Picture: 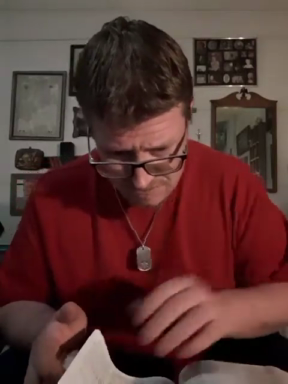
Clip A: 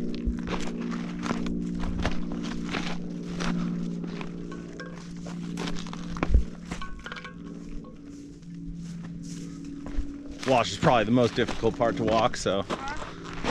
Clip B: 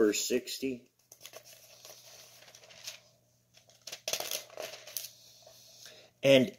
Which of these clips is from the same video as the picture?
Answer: B